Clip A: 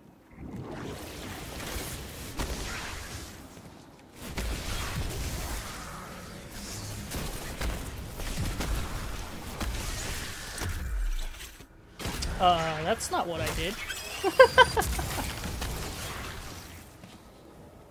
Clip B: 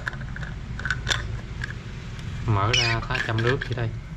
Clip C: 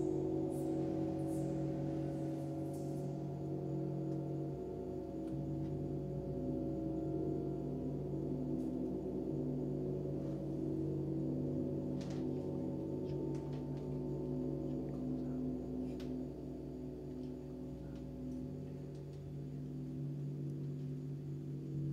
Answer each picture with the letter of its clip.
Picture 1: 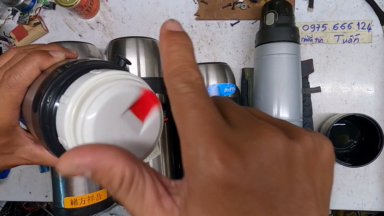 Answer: B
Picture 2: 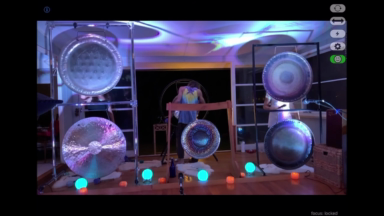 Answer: C